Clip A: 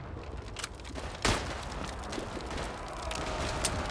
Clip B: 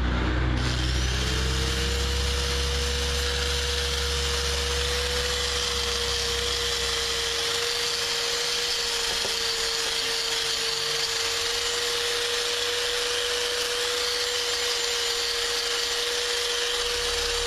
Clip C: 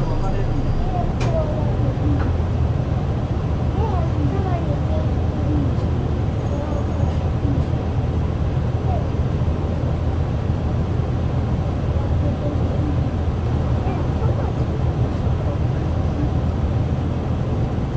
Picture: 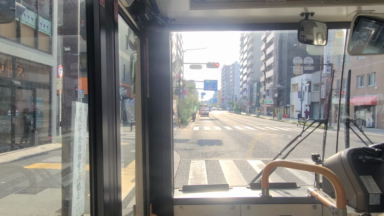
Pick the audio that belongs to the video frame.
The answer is C